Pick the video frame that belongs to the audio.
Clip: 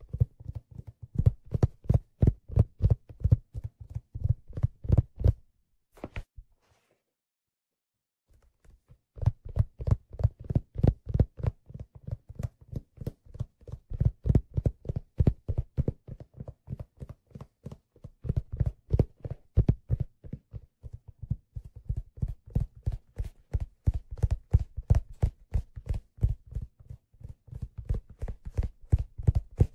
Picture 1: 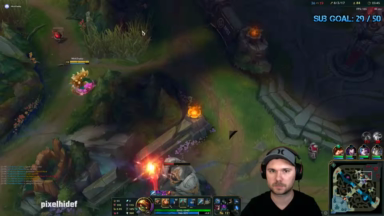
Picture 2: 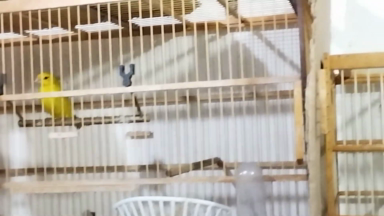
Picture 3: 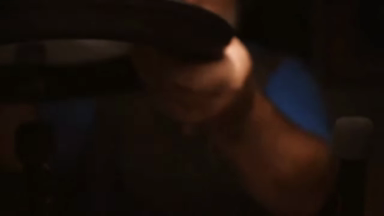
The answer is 3